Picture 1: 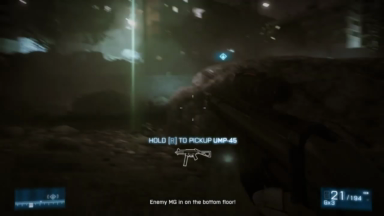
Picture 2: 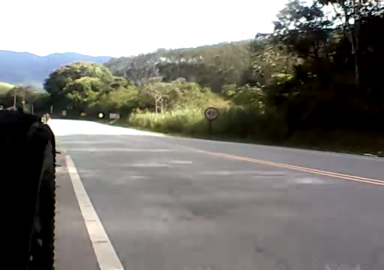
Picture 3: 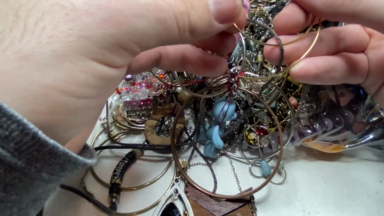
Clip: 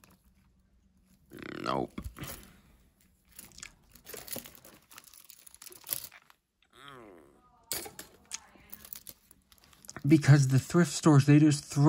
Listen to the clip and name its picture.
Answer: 3